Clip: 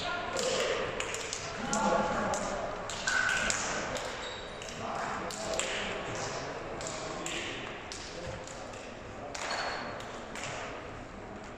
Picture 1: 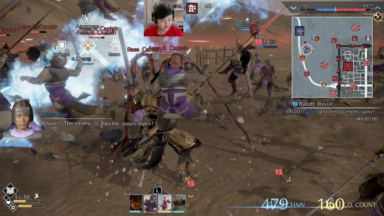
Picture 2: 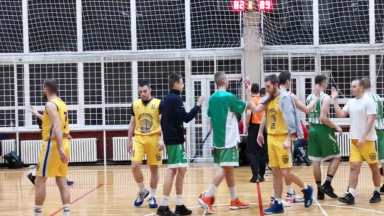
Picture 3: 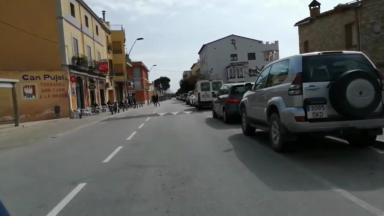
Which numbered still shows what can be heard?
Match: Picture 2